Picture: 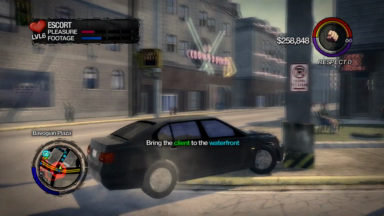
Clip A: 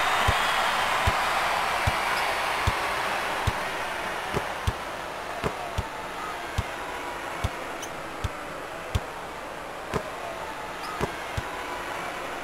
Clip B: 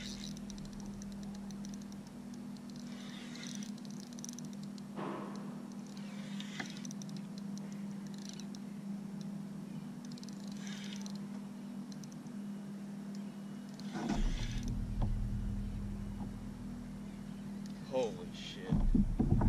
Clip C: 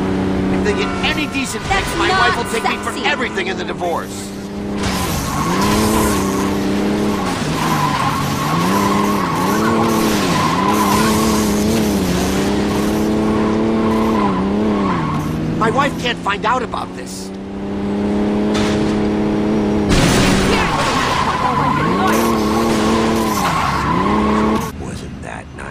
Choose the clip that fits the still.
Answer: C